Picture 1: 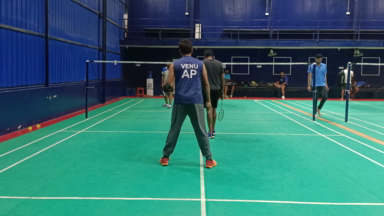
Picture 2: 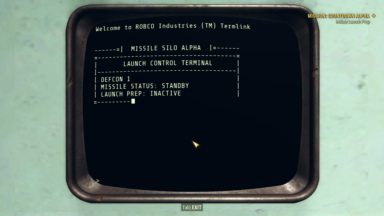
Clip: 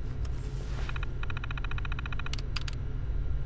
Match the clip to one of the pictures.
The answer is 2